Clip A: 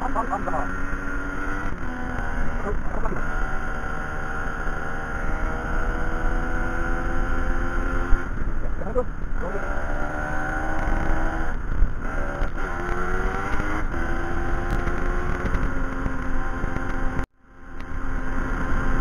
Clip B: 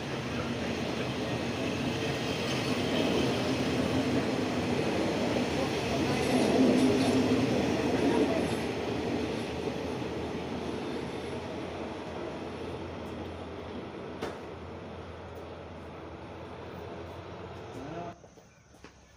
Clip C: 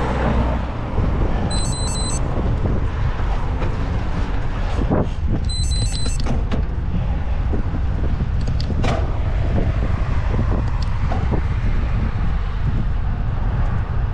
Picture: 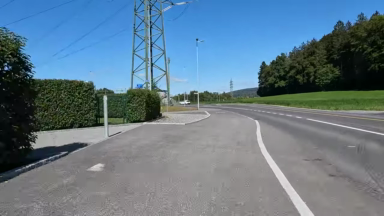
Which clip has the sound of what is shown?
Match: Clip C